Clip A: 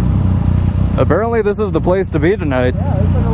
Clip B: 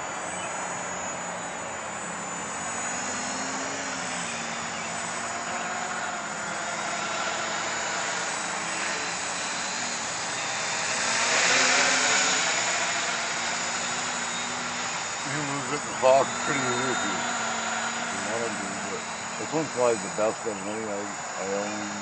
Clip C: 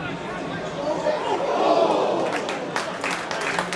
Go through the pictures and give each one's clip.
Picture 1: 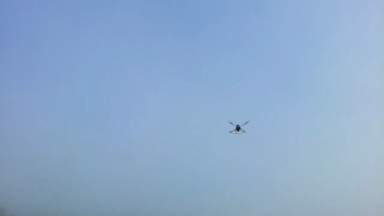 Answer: B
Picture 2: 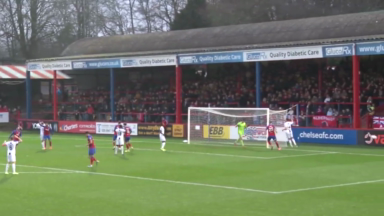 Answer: C